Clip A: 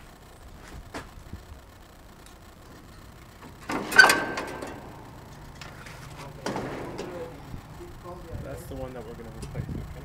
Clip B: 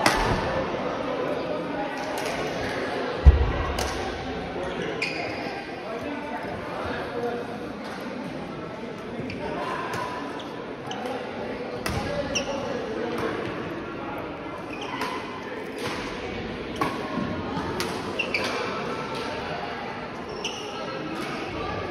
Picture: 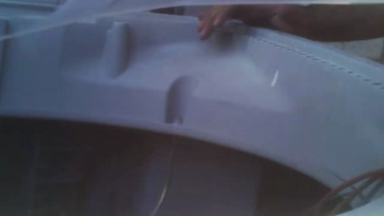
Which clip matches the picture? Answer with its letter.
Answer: A